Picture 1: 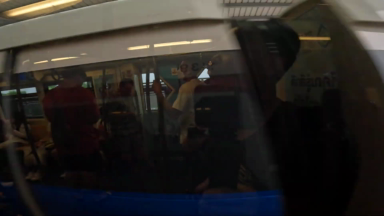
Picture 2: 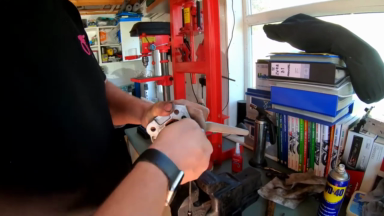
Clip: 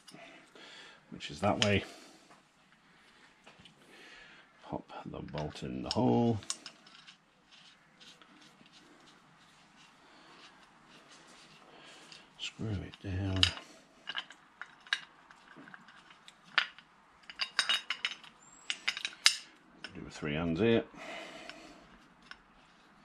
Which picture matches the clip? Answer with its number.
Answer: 2